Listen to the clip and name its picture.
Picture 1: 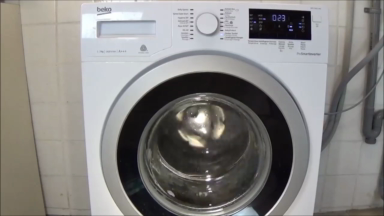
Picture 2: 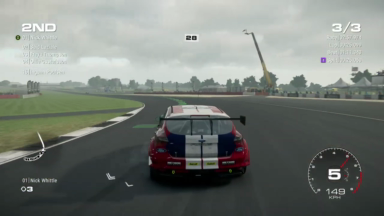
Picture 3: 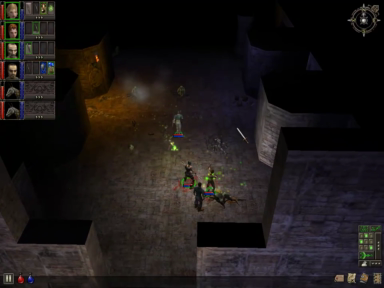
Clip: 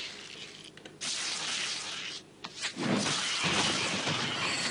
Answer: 3